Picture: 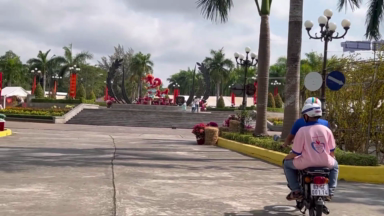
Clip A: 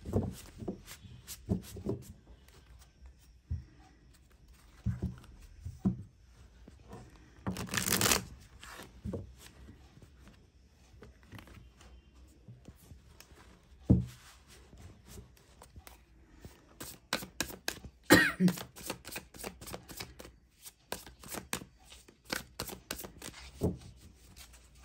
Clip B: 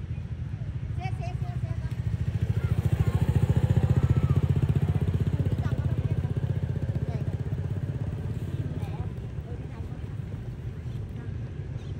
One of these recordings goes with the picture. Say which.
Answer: B